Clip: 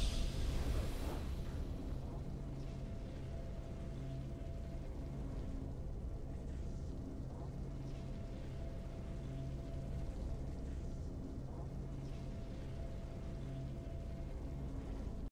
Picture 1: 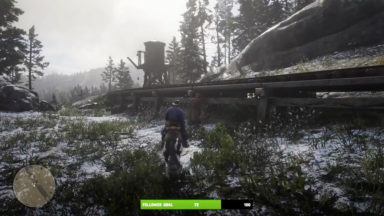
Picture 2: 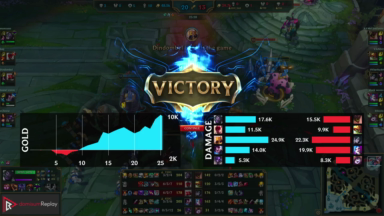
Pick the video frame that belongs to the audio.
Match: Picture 2